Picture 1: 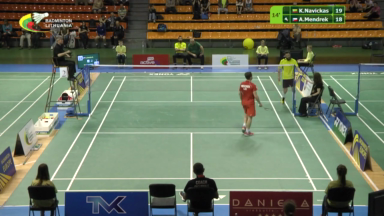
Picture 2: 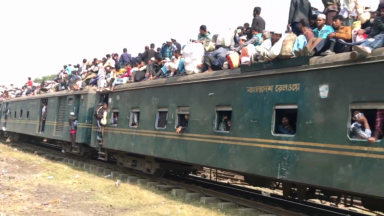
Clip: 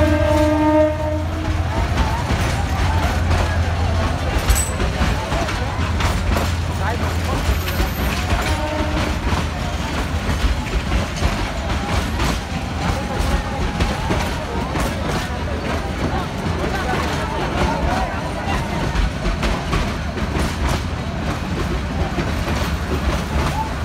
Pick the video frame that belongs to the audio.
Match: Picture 2